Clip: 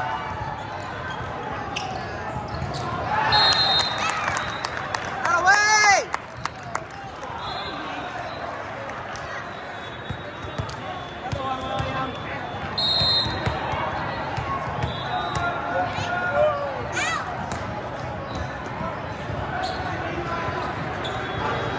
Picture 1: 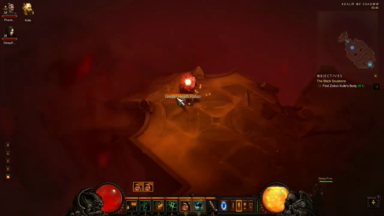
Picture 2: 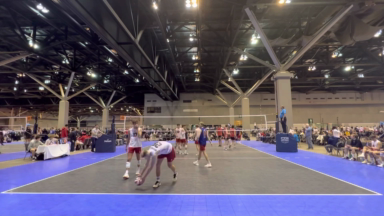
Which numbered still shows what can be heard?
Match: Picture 2